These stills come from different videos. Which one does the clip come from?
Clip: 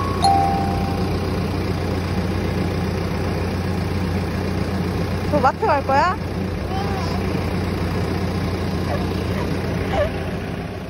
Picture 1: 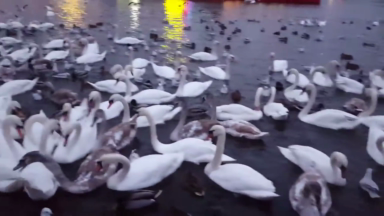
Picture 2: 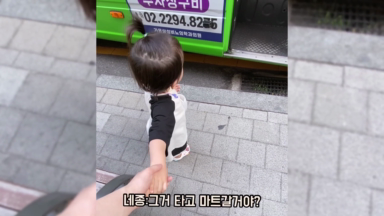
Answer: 2